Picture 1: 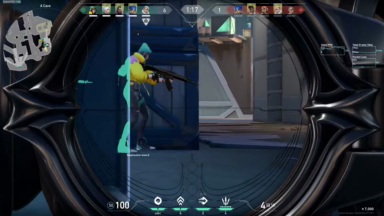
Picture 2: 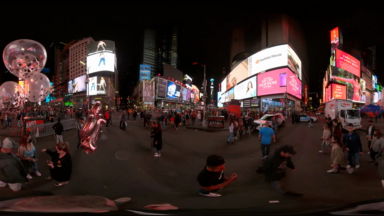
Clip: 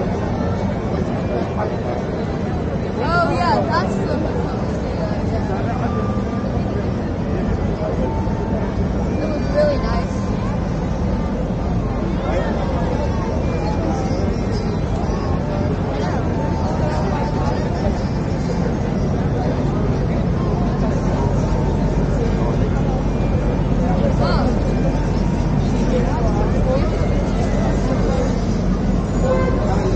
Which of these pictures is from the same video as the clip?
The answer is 2